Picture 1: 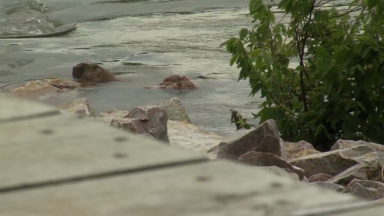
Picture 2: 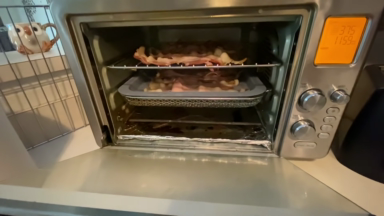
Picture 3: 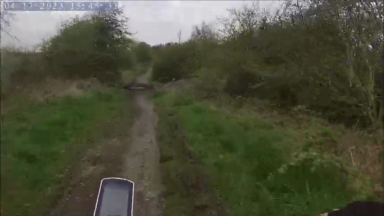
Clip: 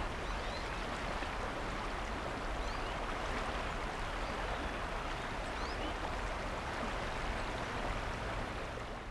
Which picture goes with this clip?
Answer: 1